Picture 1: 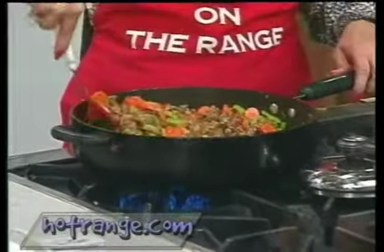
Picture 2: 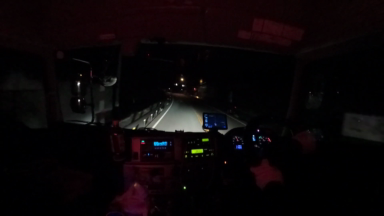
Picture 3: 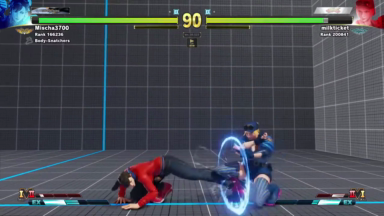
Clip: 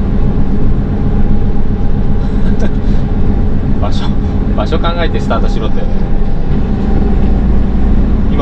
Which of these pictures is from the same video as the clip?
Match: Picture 2